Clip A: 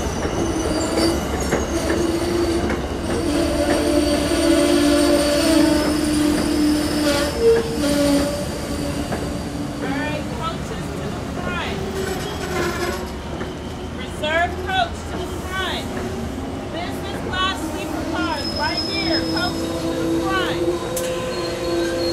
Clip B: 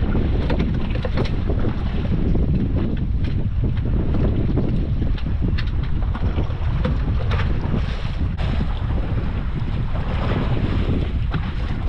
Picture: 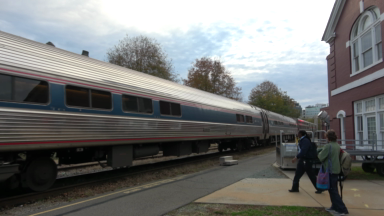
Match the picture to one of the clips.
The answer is A